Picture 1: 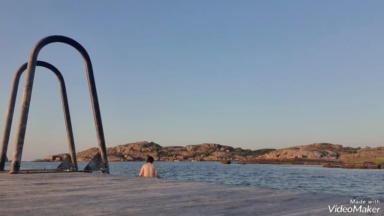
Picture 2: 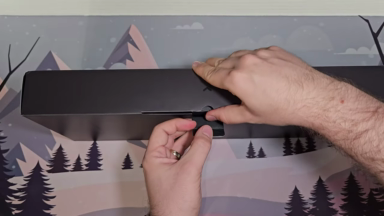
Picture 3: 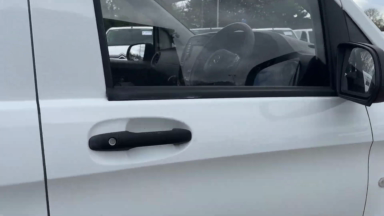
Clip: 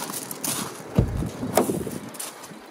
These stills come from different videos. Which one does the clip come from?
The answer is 3